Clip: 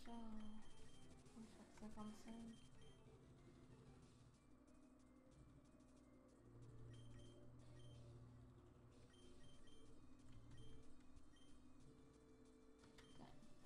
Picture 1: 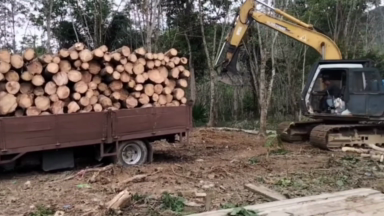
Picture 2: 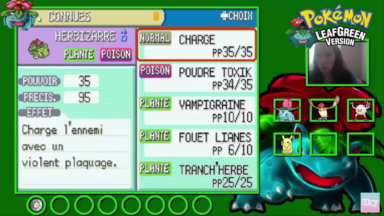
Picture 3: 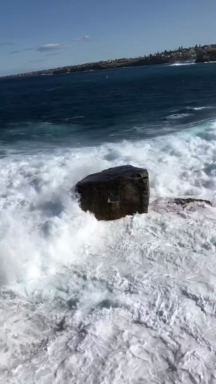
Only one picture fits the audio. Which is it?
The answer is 2